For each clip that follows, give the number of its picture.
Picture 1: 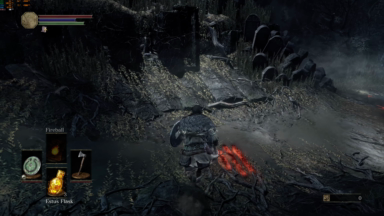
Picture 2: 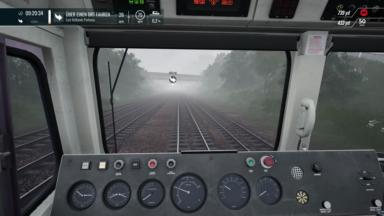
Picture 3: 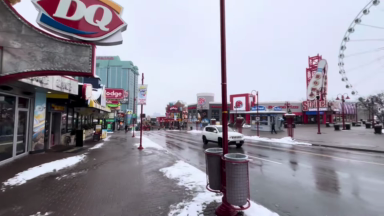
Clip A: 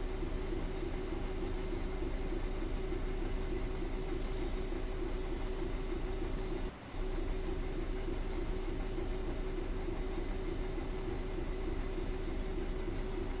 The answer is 2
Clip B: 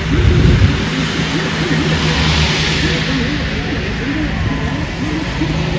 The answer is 3